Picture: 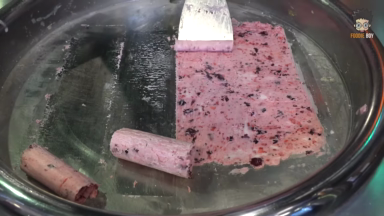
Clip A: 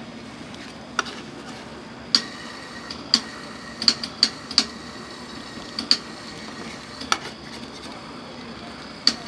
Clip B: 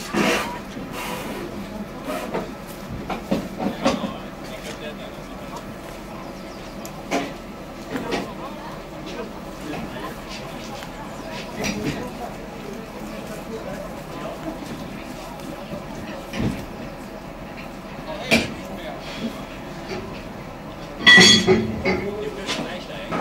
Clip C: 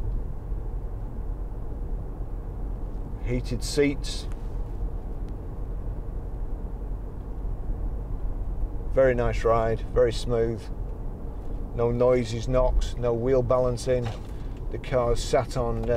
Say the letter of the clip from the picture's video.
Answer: A